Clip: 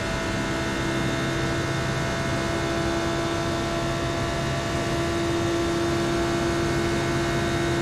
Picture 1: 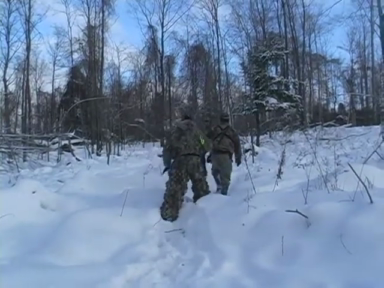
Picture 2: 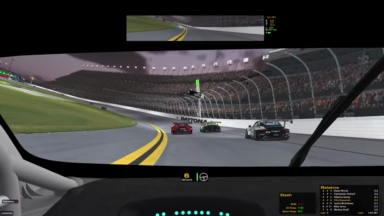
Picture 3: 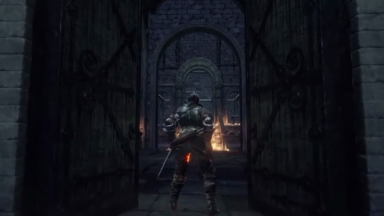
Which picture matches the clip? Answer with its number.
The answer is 2